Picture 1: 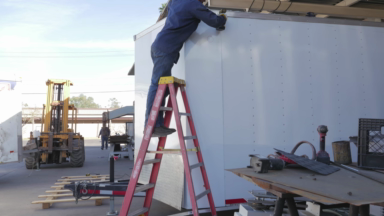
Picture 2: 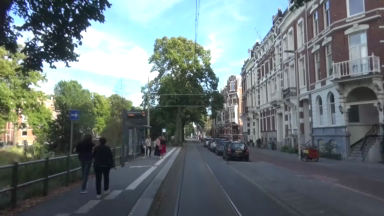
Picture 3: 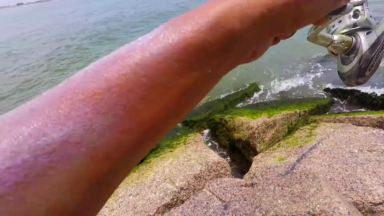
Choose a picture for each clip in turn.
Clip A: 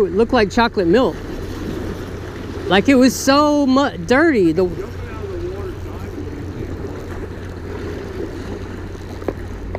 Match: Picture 3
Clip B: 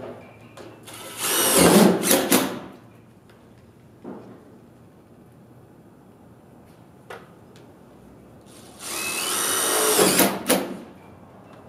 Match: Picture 1